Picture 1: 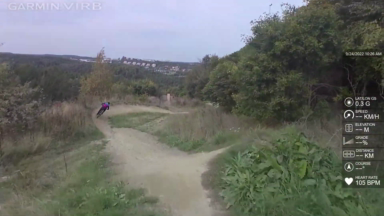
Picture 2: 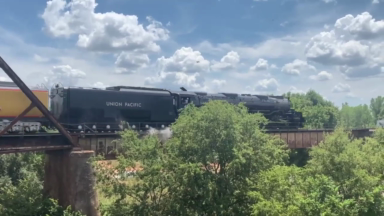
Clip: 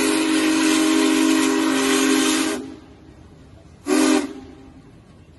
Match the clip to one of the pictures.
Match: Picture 2